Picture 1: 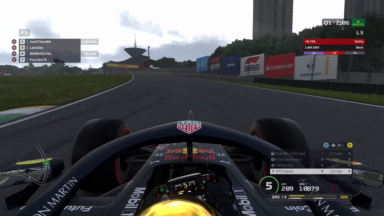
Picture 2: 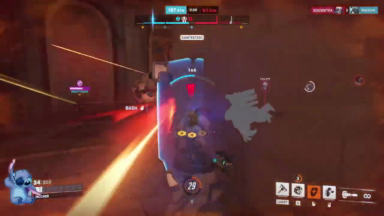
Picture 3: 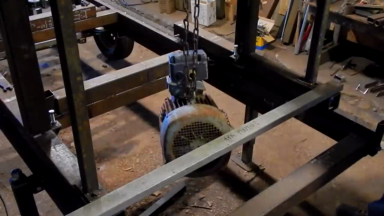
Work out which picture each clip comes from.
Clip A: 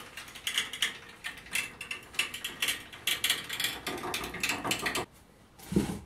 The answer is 3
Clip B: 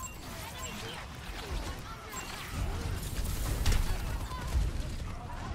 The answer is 2